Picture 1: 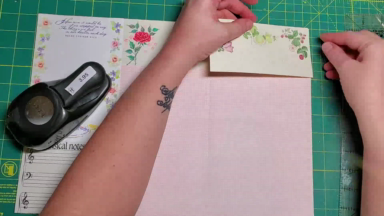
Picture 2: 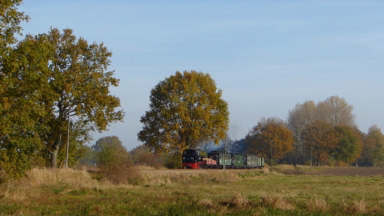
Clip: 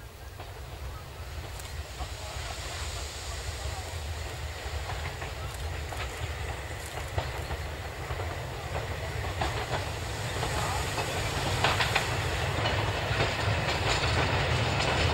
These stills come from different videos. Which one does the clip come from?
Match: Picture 2